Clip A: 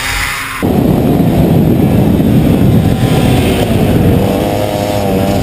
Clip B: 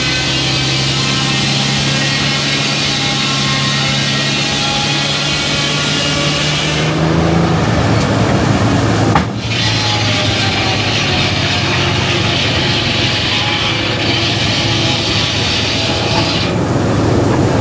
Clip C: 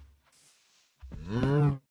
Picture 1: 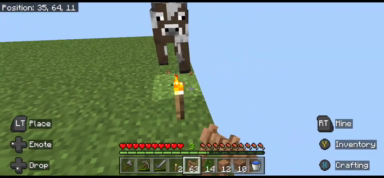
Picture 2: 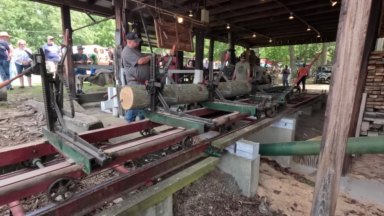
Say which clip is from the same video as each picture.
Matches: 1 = C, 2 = B